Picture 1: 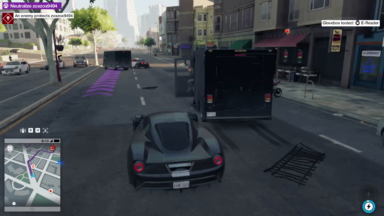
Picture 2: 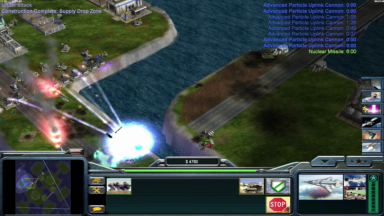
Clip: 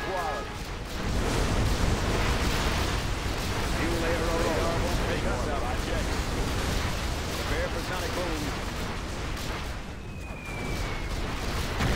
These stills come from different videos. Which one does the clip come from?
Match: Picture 2